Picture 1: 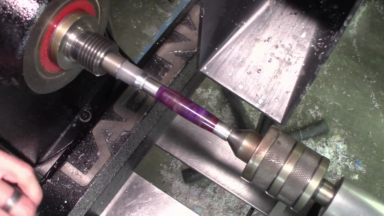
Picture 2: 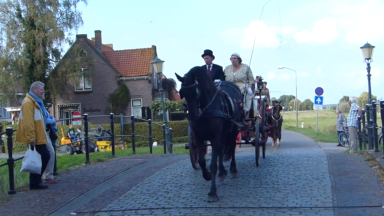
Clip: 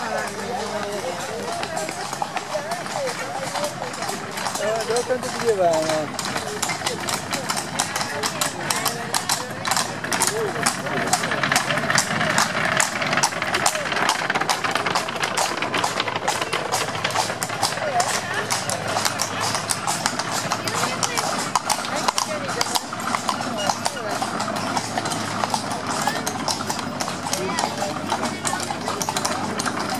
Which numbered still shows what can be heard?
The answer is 2